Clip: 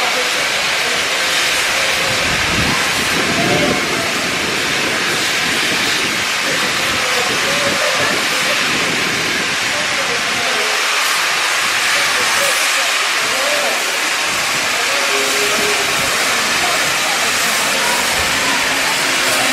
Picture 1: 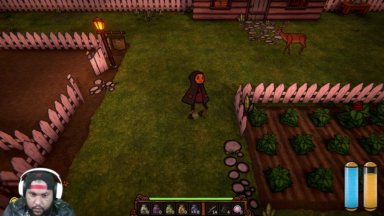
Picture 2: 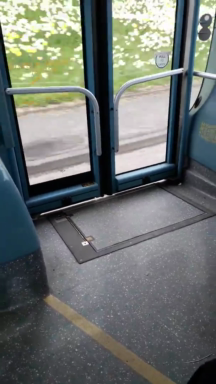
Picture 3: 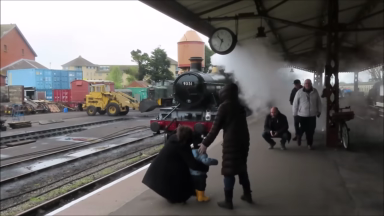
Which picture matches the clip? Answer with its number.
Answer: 3